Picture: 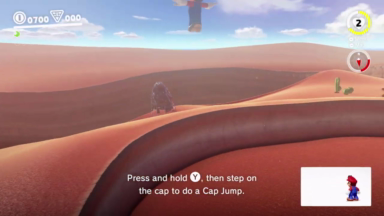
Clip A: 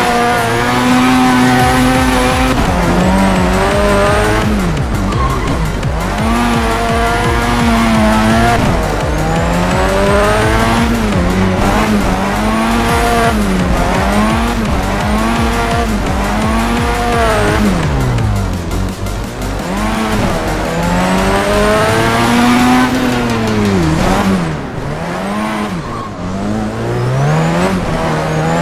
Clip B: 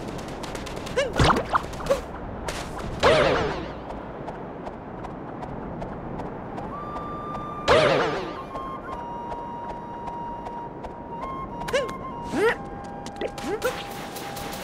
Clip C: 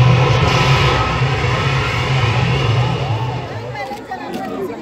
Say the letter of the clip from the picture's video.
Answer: B